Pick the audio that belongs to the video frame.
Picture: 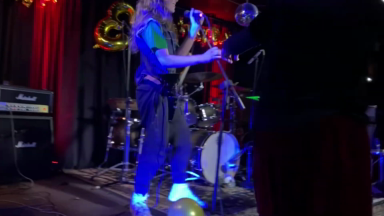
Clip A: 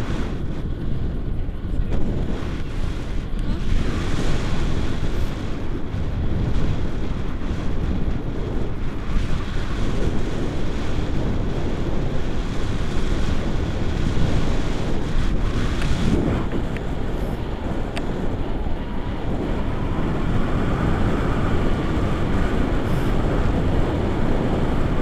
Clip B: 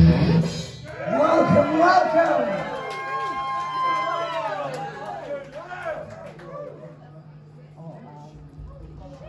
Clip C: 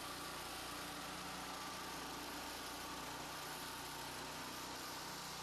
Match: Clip B